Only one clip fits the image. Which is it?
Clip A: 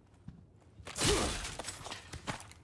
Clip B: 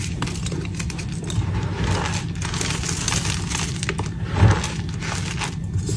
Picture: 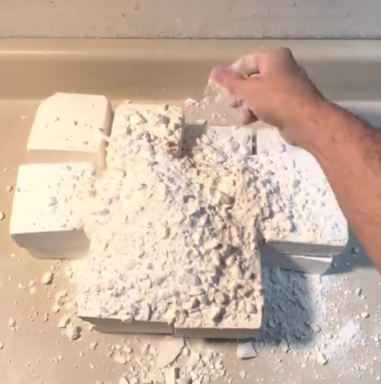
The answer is B